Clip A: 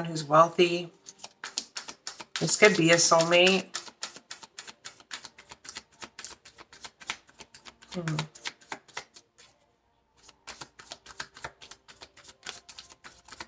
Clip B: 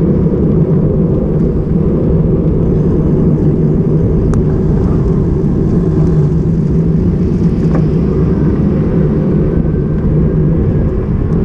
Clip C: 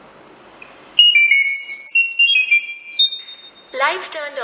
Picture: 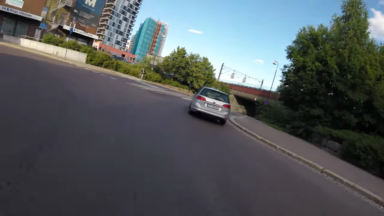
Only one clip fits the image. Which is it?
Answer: B